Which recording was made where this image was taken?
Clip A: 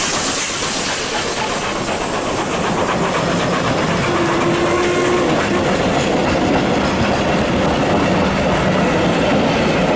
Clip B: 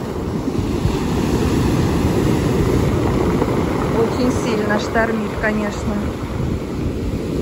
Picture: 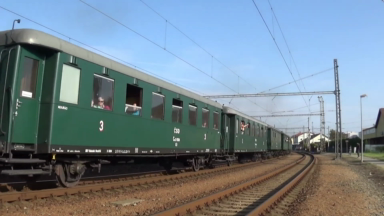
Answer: A